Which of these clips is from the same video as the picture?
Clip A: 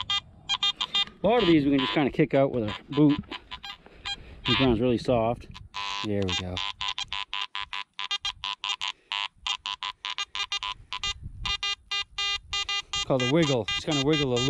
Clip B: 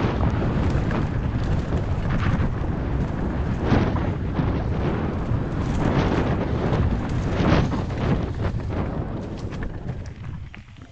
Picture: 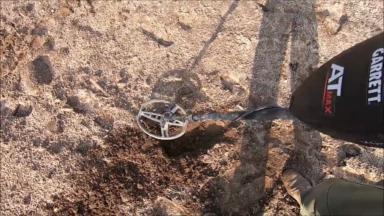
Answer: A